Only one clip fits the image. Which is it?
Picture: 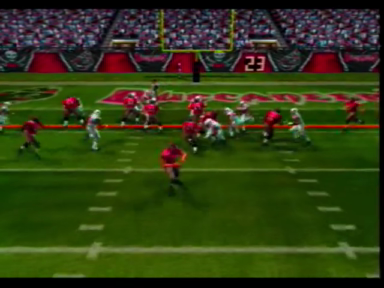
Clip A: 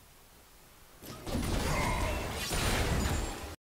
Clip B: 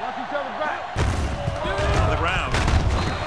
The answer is B